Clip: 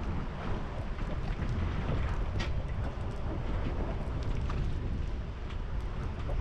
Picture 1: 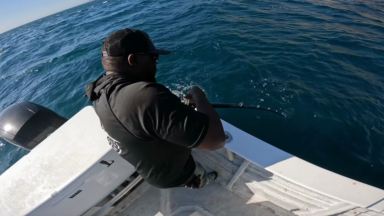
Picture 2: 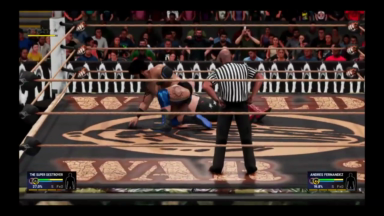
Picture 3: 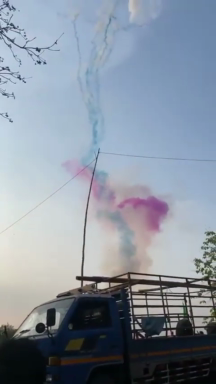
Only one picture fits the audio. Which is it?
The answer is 1